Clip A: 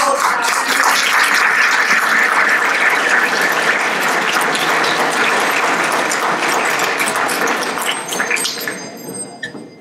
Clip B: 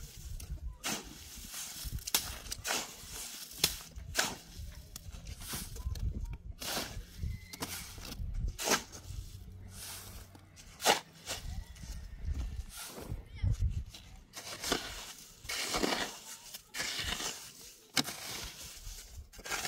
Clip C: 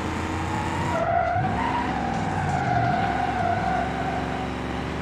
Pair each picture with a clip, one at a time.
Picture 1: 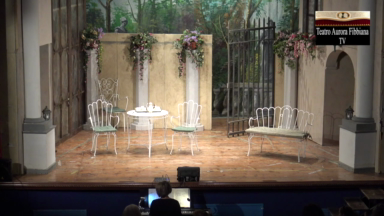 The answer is A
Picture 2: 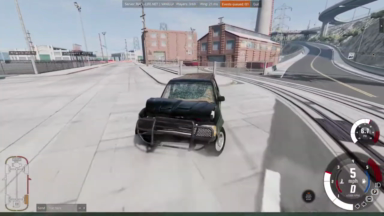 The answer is C